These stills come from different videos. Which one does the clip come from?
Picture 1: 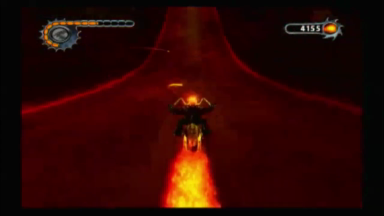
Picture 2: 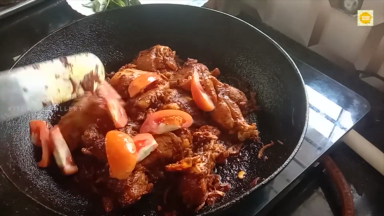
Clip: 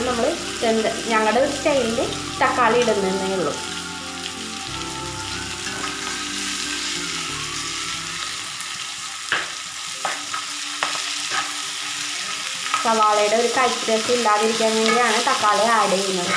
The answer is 2